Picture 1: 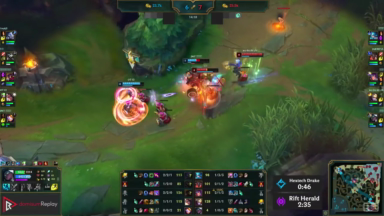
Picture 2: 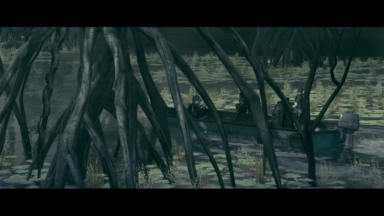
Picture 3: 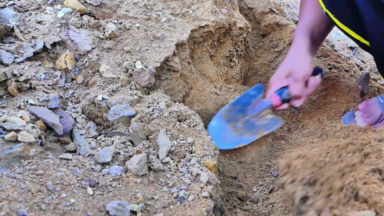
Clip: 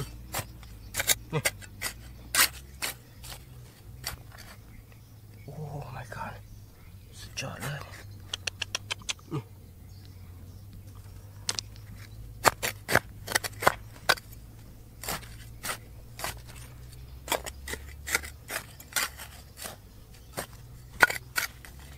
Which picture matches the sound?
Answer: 3